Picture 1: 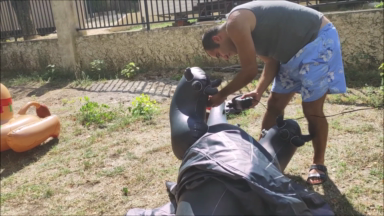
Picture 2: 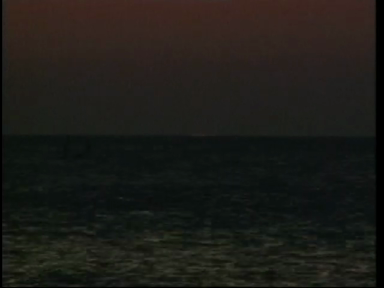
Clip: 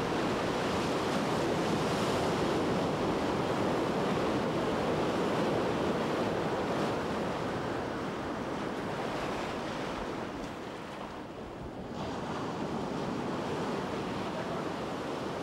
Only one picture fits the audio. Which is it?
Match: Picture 2